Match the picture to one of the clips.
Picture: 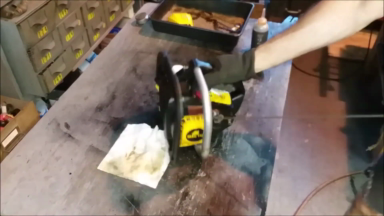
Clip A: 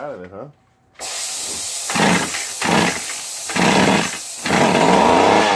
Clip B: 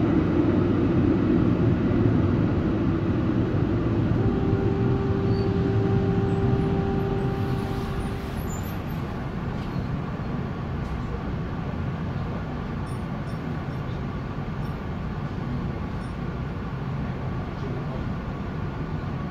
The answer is A